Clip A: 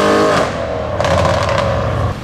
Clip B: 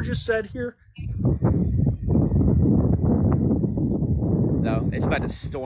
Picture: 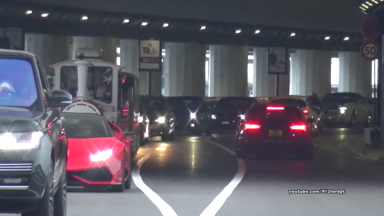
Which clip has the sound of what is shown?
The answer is A